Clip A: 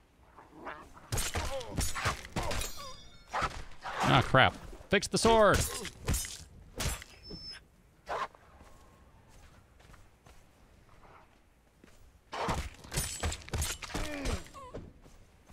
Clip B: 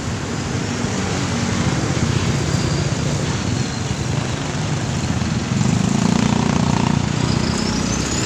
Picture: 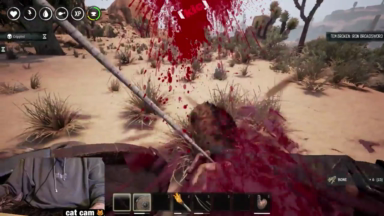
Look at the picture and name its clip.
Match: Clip A